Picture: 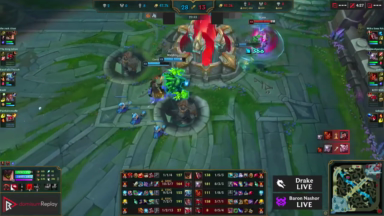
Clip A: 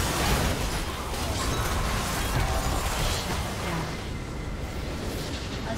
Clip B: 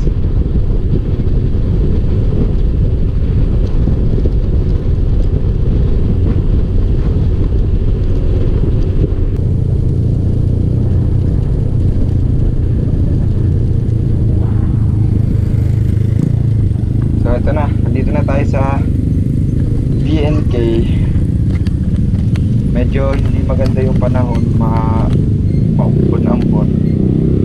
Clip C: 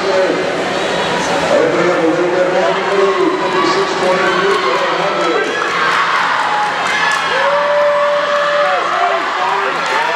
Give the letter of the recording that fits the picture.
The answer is A